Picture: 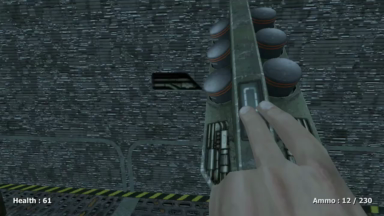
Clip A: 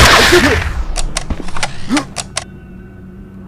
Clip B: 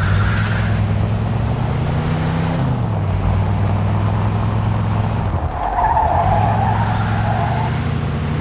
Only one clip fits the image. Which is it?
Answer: A